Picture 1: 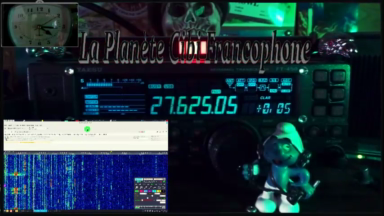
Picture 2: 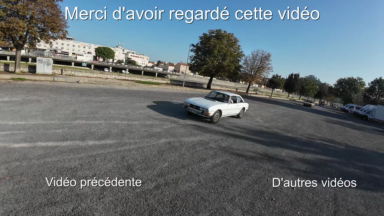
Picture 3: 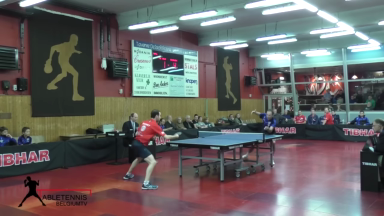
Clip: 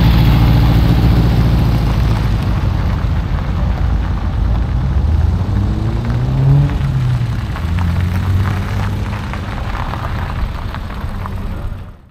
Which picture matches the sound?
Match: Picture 2